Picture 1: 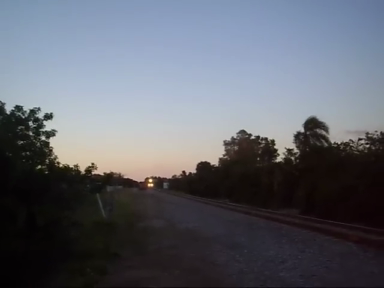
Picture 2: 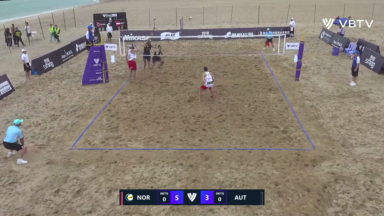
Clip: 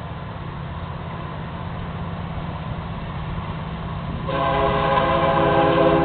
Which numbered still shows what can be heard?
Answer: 1